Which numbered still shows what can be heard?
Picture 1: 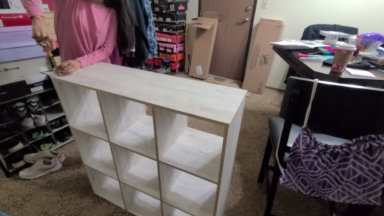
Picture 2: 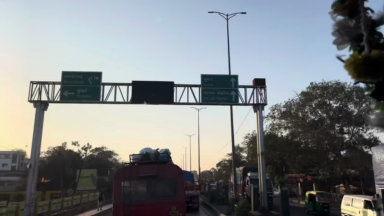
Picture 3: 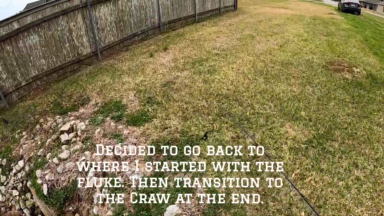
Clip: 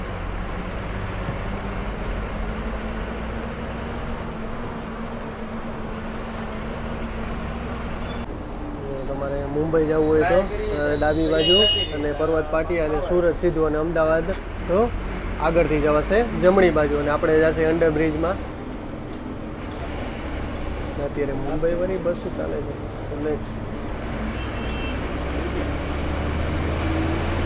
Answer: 2